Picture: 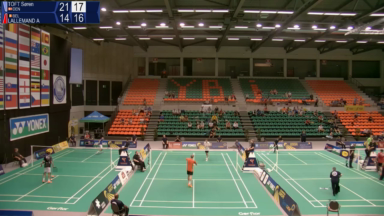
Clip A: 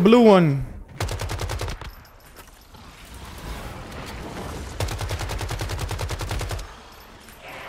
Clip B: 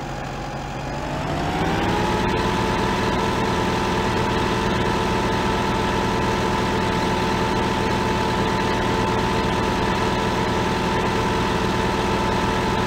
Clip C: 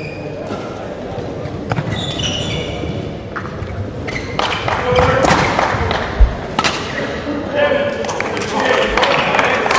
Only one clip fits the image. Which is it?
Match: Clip C